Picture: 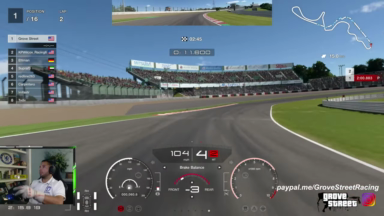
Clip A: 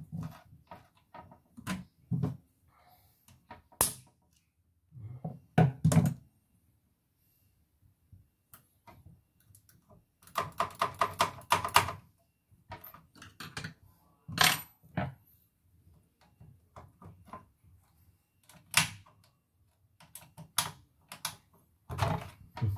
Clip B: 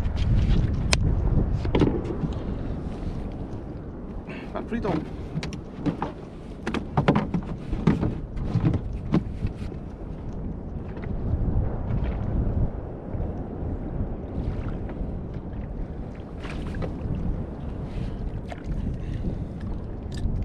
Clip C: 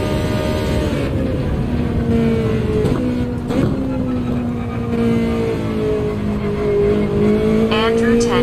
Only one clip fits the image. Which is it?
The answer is C